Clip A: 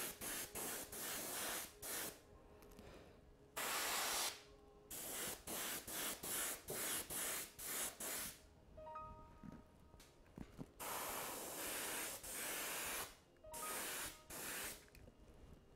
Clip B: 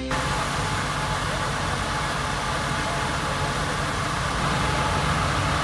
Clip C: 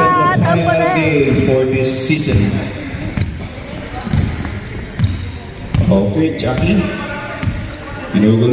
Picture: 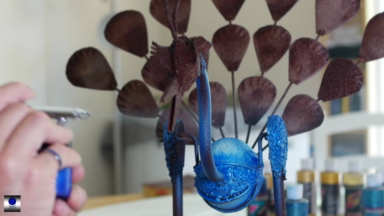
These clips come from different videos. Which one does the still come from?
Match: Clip A